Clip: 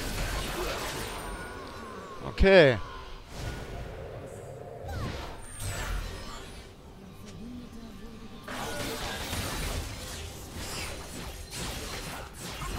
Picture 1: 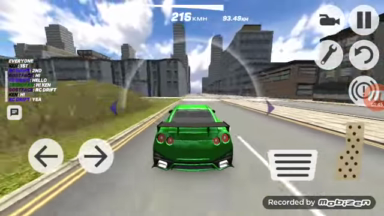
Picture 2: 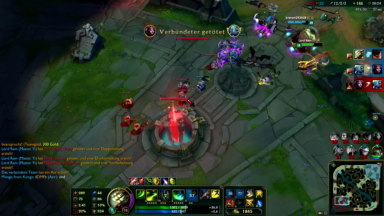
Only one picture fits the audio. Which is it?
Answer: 2